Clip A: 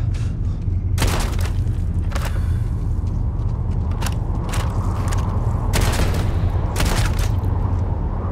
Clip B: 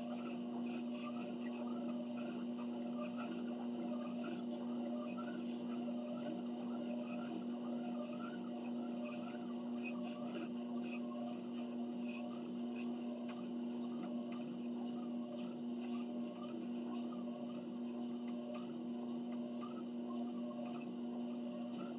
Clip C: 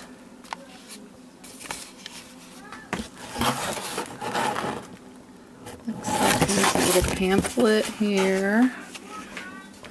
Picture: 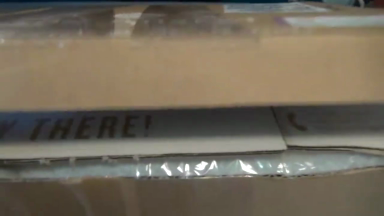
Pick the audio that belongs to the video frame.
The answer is C